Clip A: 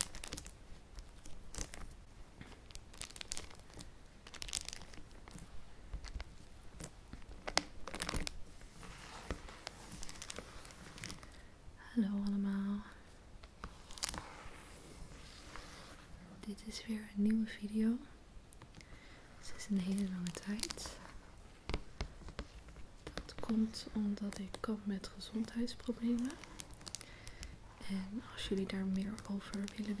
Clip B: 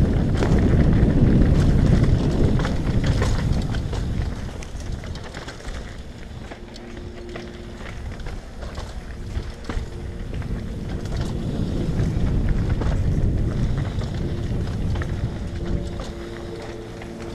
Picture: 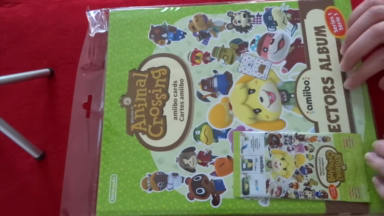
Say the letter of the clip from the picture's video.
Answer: A